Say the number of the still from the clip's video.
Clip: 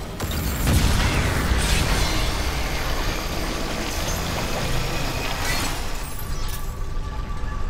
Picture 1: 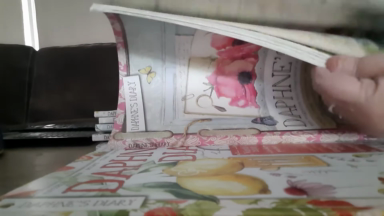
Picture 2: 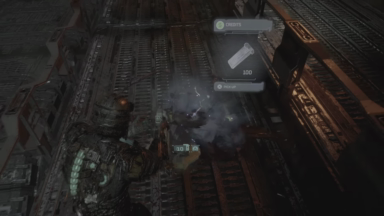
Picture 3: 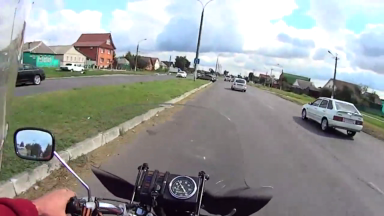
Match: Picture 2